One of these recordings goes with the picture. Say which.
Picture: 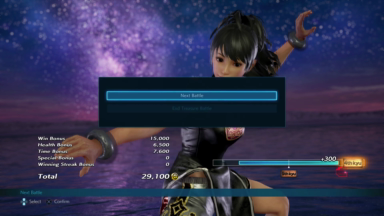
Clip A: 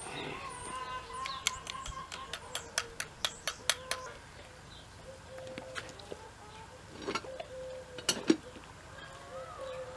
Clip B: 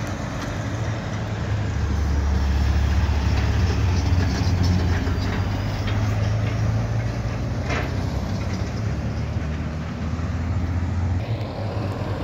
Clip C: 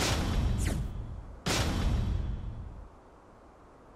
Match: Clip C